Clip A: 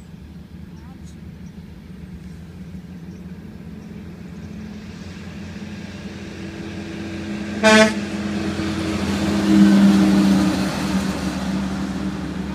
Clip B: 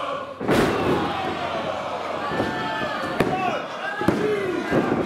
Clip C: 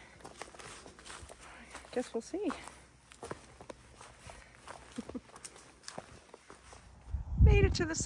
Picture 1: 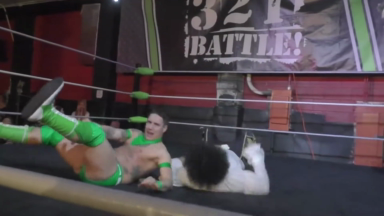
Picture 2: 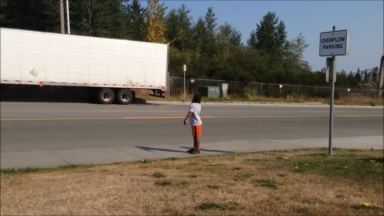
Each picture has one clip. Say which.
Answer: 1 B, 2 A